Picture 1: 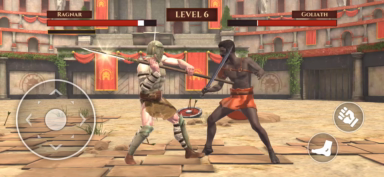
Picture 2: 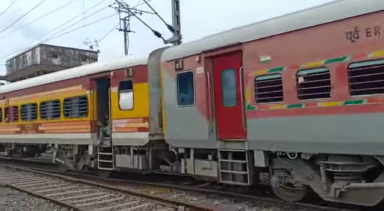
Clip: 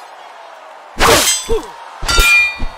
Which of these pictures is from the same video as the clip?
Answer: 1